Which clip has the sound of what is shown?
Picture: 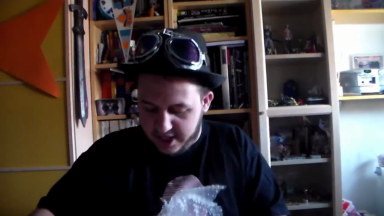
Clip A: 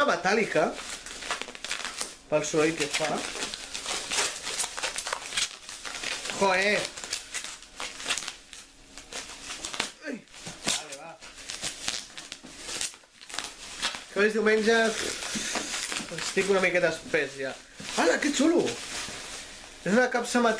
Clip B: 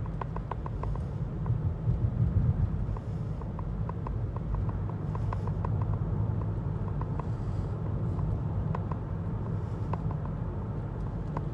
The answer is A